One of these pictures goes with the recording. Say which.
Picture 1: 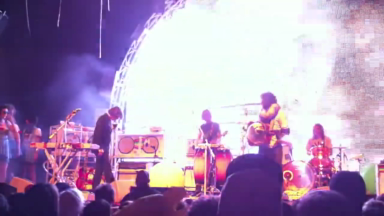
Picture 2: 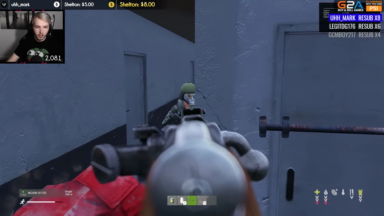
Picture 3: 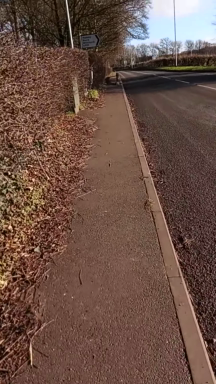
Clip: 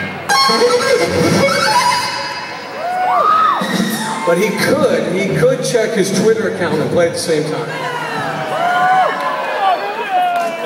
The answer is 1